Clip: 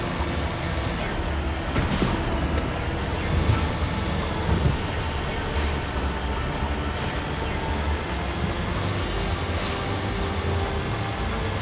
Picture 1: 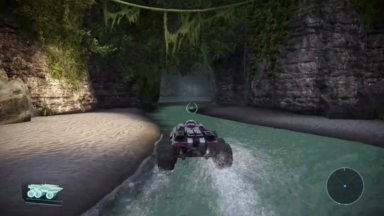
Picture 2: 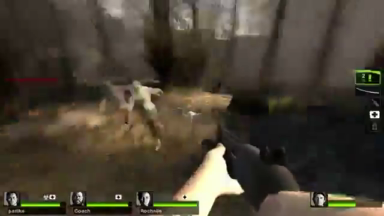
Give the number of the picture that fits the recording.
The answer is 1